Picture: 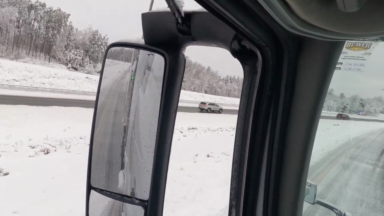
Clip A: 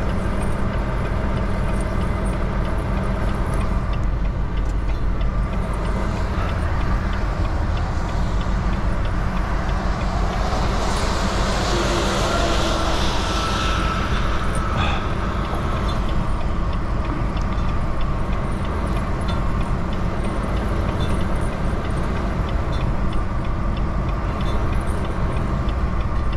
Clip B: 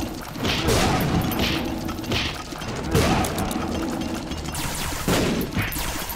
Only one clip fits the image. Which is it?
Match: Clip A